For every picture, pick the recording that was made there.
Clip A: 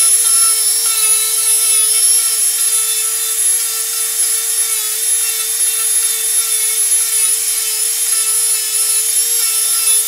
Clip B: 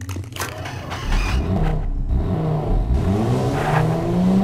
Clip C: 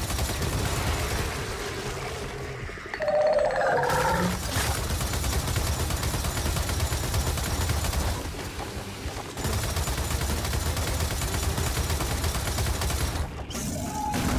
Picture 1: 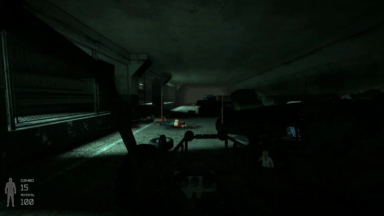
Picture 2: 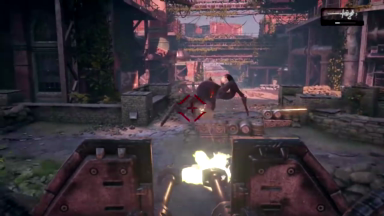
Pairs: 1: B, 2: C